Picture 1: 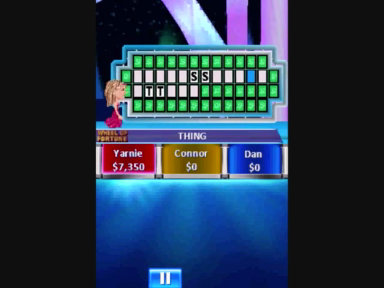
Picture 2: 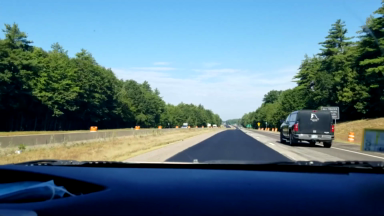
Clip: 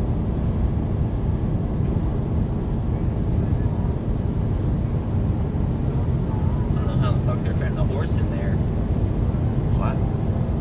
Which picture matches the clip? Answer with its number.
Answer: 2